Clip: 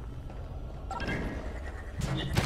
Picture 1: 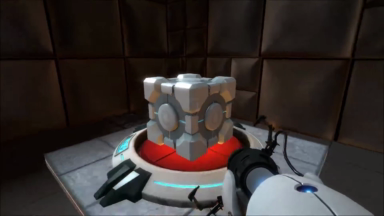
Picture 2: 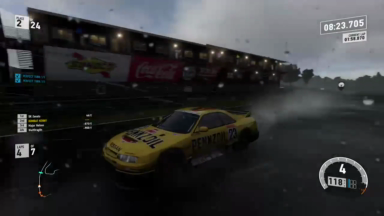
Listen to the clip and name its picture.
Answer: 1